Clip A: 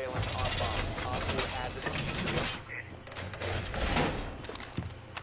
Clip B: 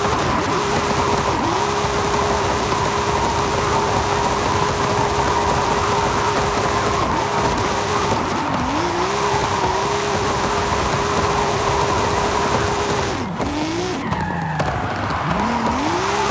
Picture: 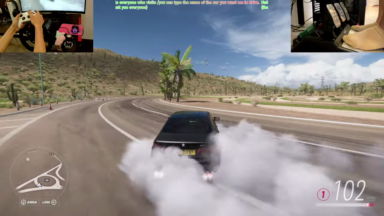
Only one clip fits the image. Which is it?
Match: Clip B